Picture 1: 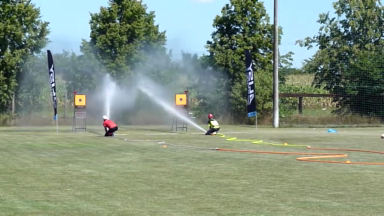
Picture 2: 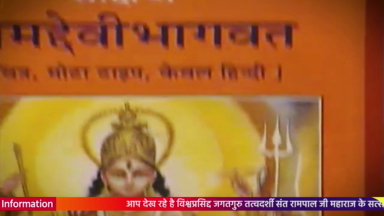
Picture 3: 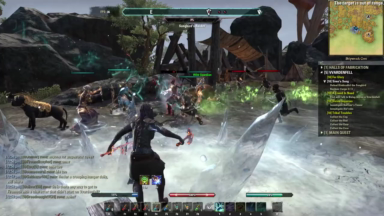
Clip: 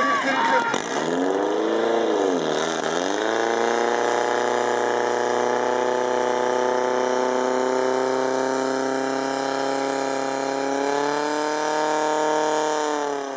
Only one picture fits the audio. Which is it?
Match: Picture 1